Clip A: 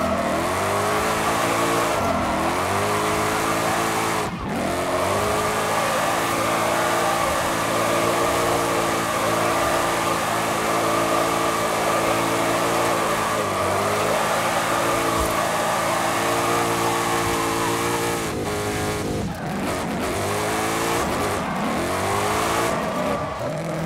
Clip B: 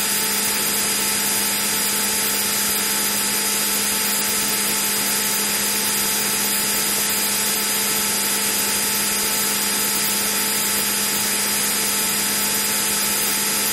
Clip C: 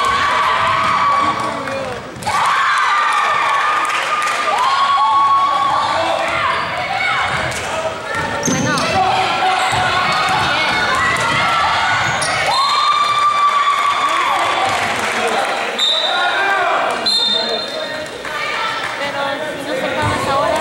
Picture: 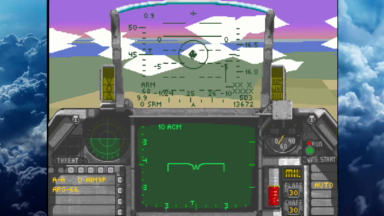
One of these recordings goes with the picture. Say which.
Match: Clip B